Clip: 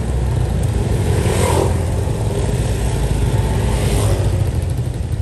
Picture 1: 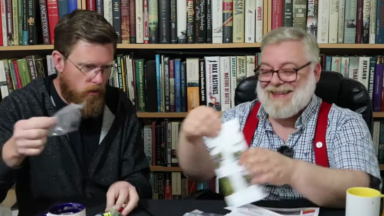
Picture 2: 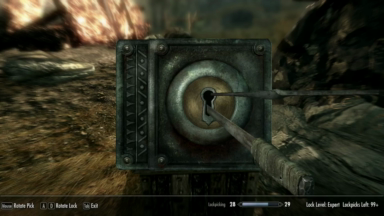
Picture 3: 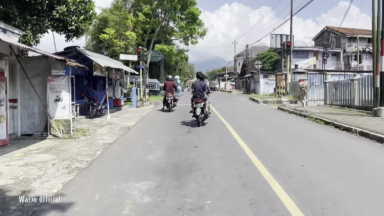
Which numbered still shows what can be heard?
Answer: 3